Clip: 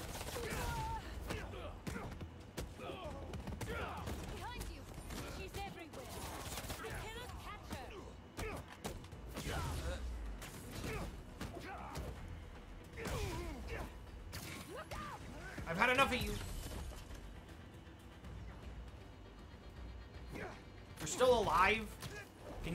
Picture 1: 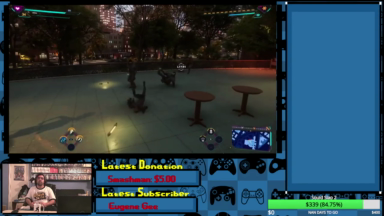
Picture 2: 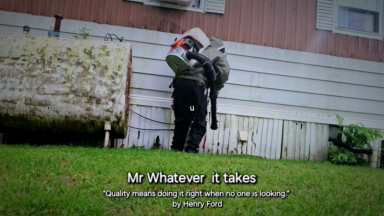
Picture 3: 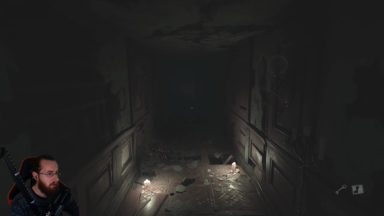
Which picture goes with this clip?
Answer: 1